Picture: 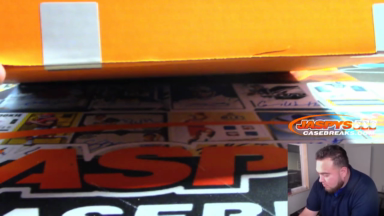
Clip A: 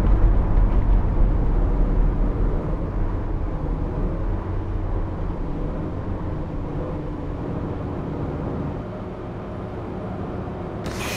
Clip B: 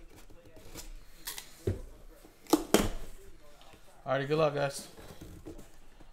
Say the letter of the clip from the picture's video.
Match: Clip B